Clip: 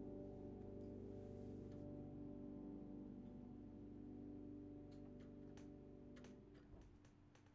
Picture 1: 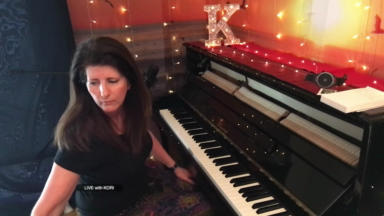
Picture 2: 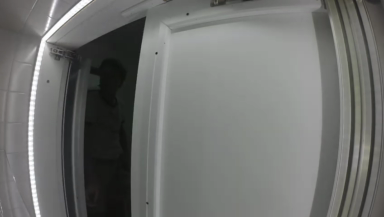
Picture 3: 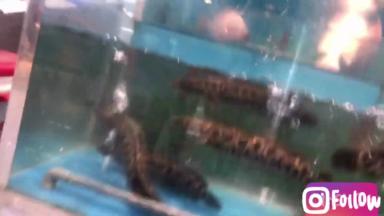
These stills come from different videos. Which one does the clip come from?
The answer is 1